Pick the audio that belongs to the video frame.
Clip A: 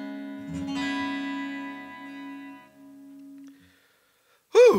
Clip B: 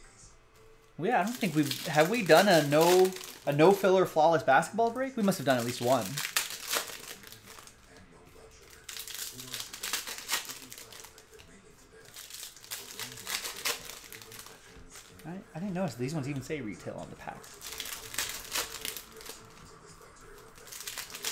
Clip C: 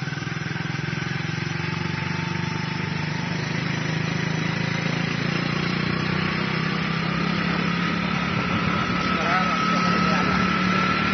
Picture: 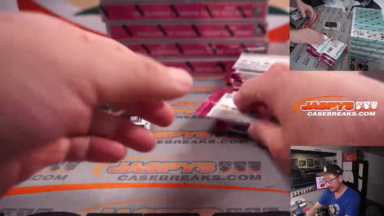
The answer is B